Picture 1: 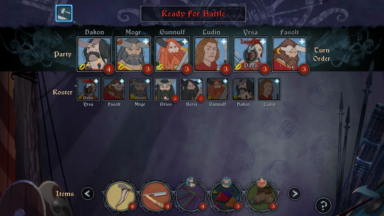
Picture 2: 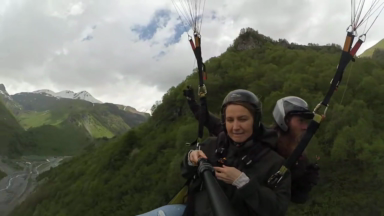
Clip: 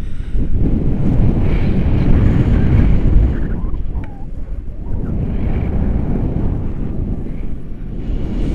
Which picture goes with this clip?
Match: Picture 2